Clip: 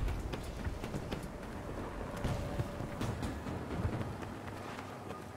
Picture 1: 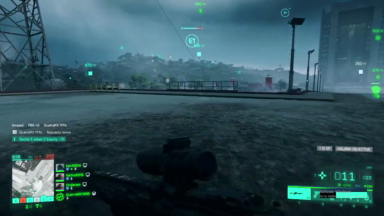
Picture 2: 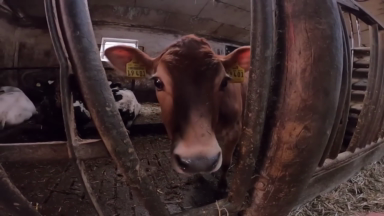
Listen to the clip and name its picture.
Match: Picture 1